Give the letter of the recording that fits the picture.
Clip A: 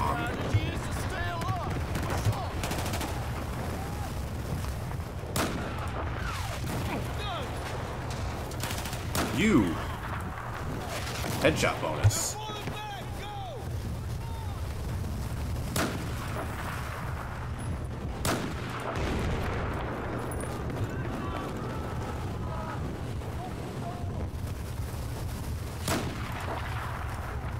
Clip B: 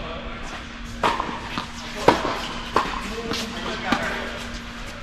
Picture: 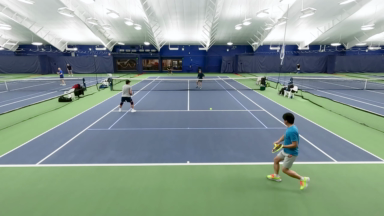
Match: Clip B